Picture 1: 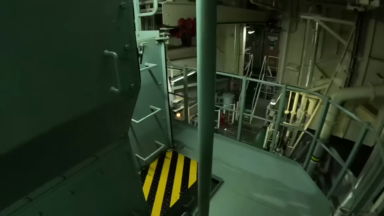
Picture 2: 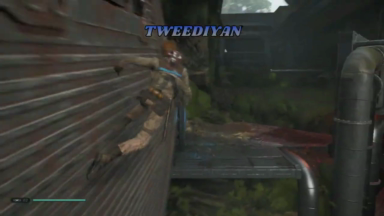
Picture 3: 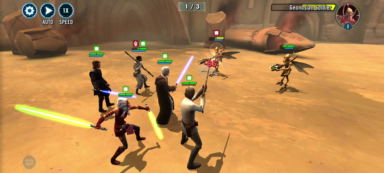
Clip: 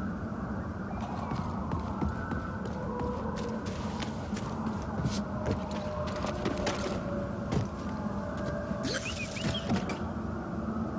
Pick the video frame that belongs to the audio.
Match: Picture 2